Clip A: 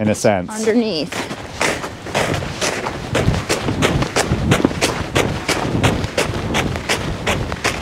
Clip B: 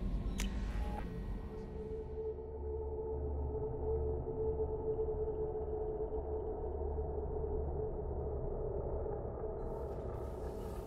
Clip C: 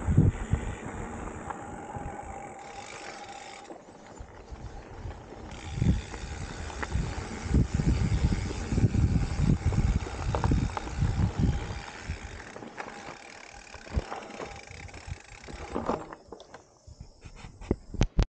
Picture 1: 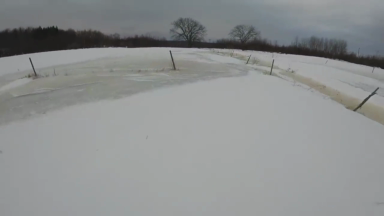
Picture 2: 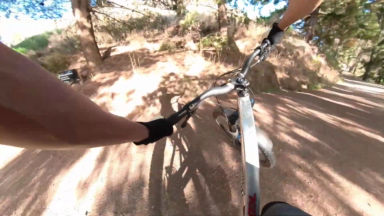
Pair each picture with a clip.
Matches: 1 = A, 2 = C